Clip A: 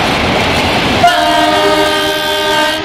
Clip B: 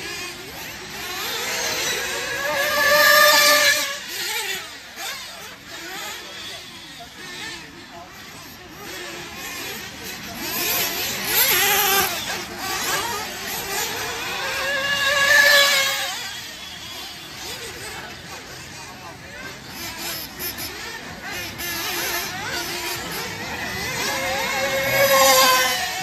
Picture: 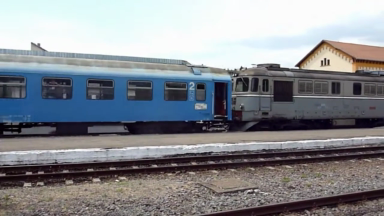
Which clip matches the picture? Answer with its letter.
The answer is A